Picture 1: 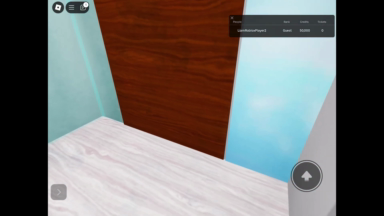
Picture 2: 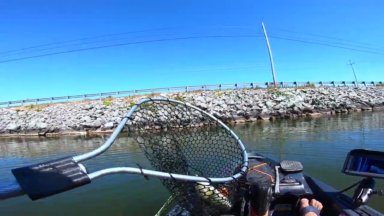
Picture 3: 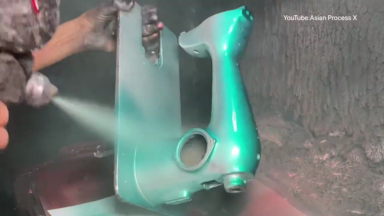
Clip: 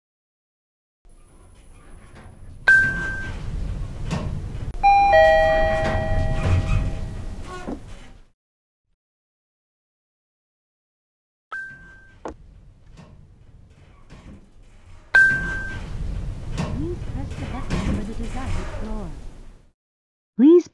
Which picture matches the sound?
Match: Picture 1